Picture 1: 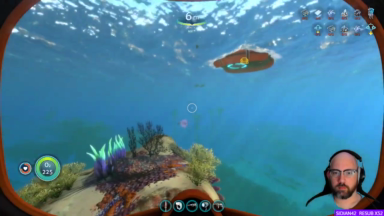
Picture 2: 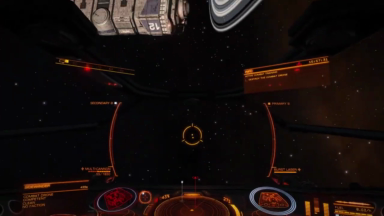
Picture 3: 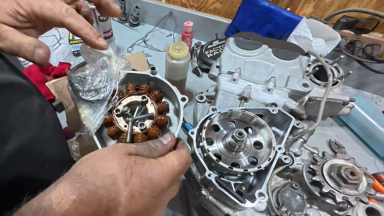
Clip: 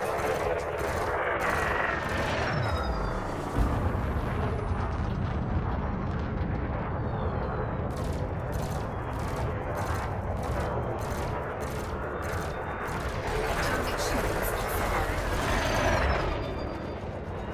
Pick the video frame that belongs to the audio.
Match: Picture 2